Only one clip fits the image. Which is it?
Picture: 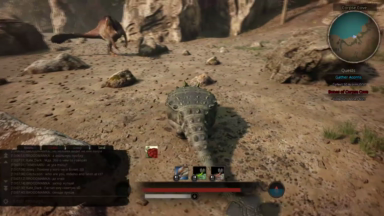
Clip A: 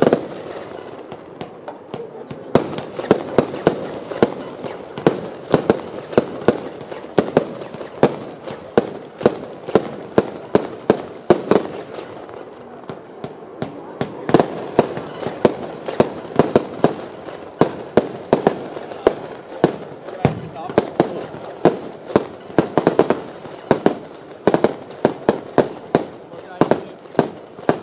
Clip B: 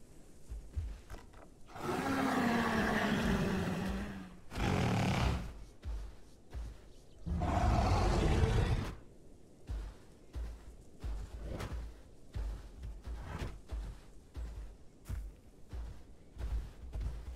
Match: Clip B